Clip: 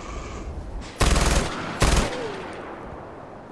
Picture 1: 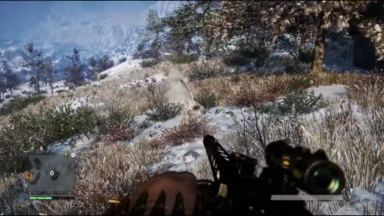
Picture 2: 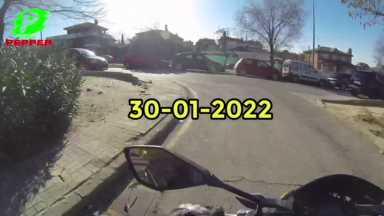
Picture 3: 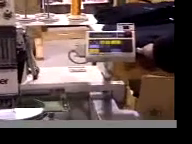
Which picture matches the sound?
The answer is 1